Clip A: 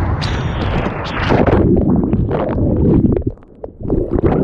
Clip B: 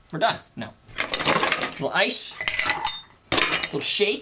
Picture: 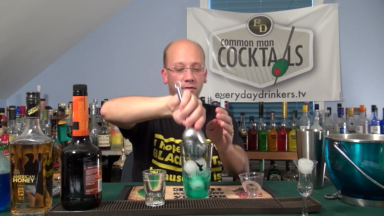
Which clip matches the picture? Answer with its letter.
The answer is B